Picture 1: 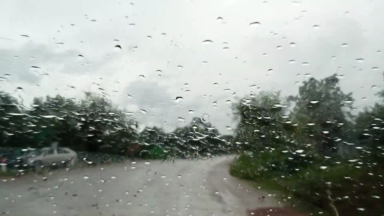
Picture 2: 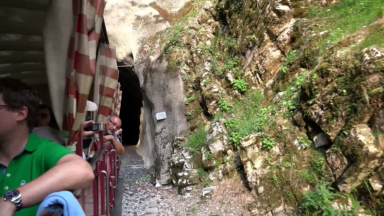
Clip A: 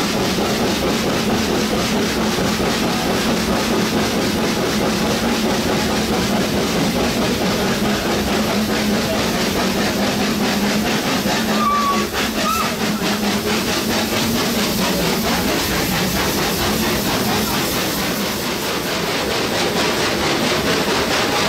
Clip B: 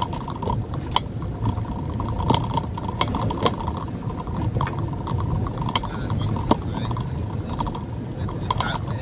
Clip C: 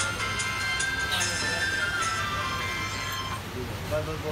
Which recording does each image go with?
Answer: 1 B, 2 A